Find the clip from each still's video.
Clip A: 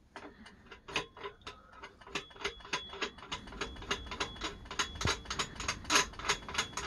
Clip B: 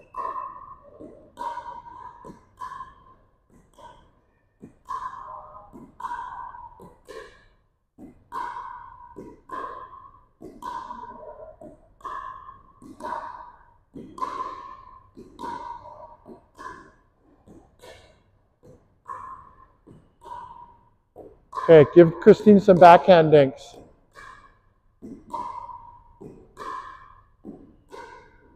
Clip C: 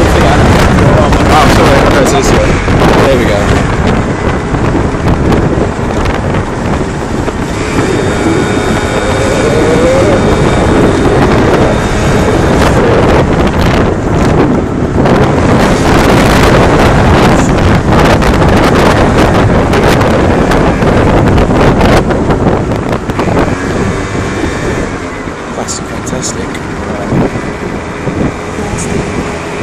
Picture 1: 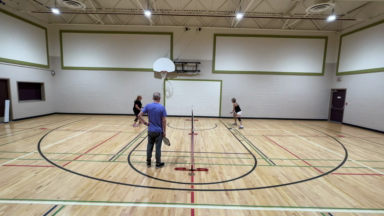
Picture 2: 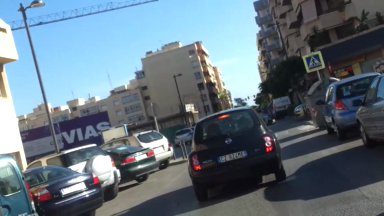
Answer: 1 B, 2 C